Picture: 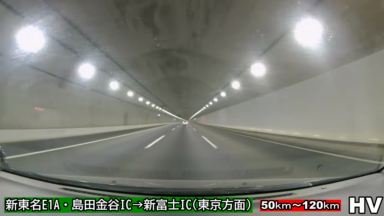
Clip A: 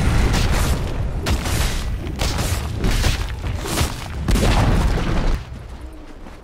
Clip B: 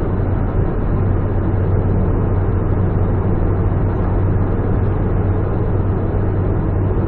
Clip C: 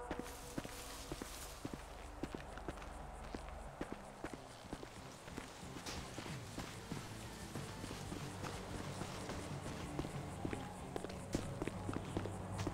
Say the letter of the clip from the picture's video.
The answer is B